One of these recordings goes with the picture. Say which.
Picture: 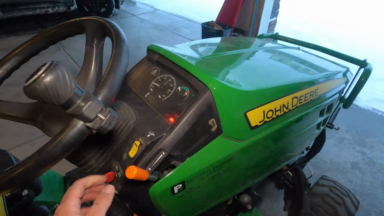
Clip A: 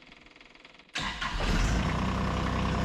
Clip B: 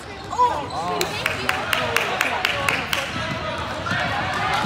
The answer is A